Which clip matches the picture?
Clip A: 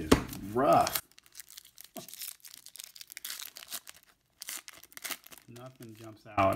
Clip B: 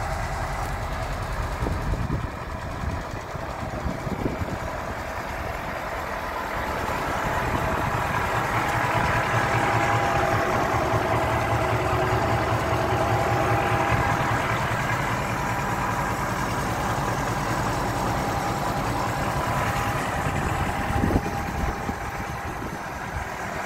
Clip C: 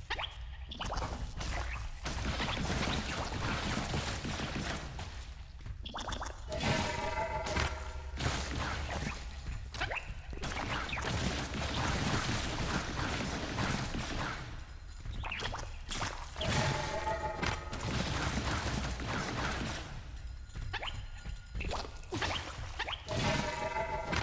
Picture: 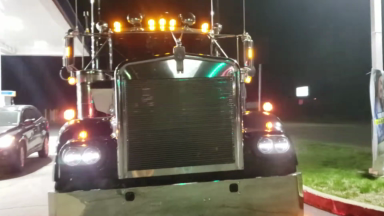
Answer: B